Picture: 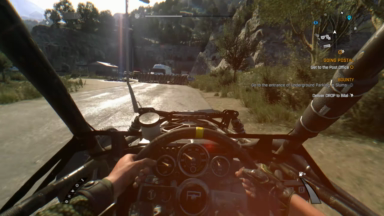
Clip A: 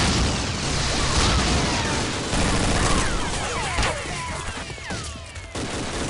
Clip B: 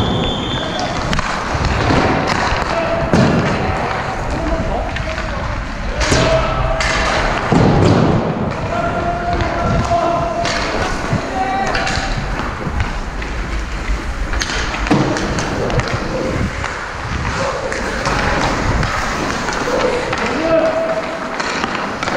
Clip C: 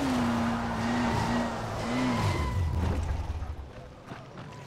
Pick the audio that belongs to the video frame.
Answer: C